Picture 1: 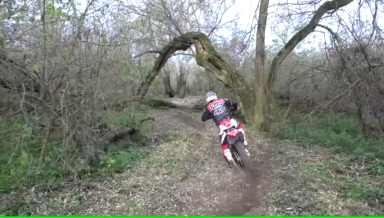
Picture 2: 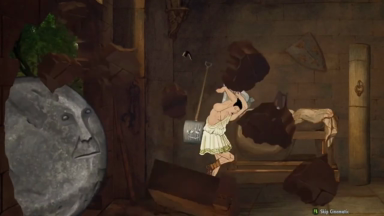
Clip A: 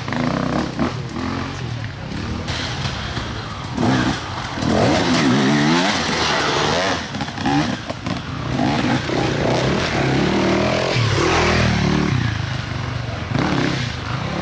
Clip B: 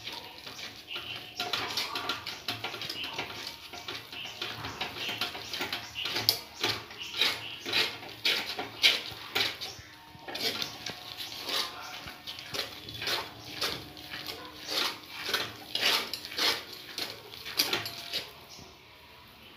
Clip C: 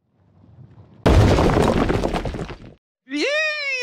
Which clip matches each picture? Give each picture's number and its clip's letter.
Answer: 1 A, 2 C